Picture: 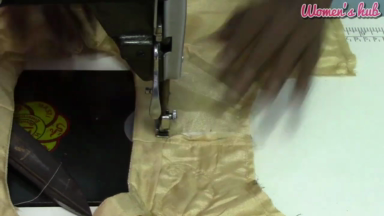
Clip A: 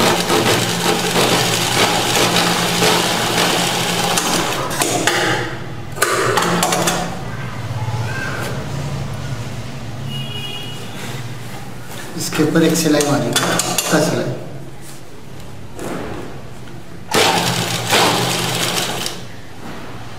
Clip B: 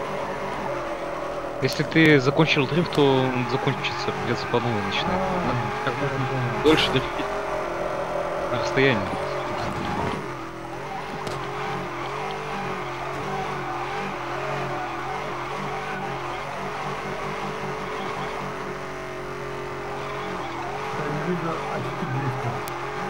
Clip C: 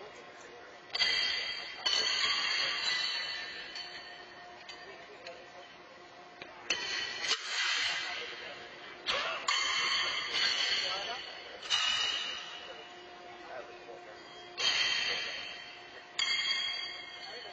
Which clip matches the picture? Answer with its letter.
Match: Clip A